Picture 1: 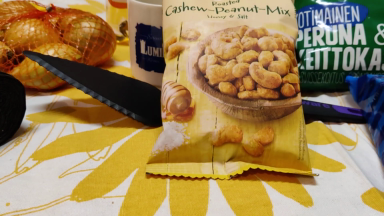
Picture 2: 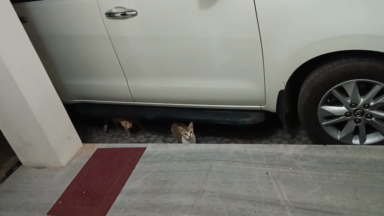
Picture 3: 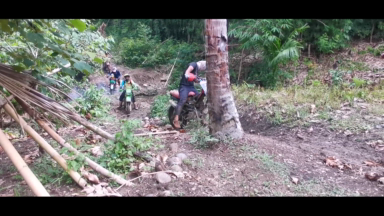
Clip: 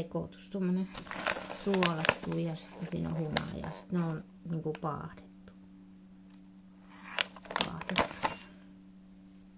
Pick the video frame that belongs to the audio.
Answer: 1